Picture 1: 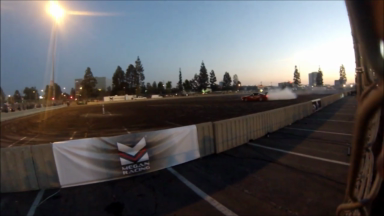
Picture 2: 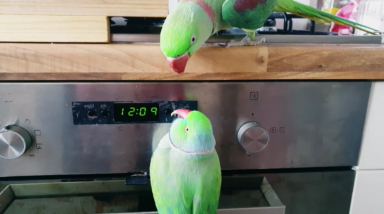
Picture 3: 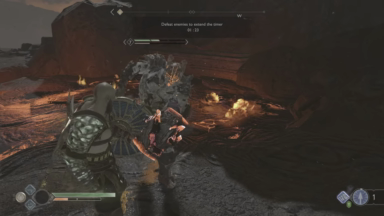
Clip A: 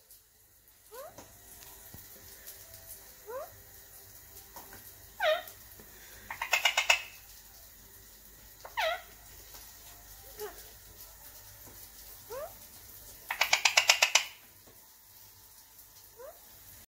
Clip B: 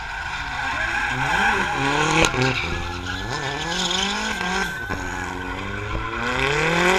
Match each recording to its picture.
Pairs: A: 2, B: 1